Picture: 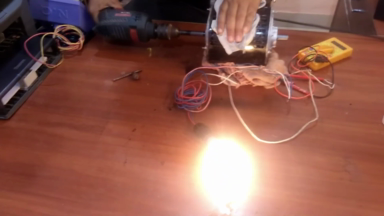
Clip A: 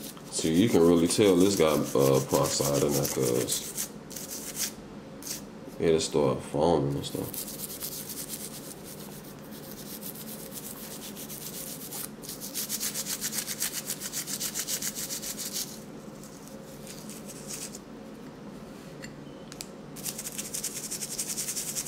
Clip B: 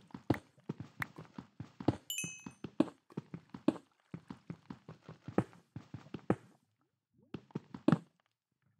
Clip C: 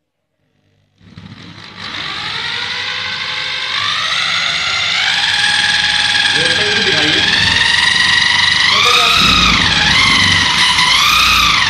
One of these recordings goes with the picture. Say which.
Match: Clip C